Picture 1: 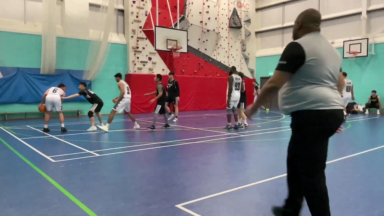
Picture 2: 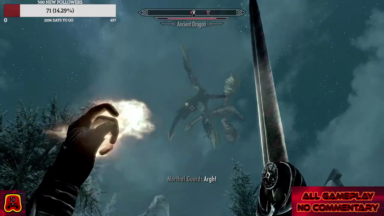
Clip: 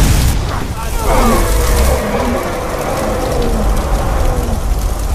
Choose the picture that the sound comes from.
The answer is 2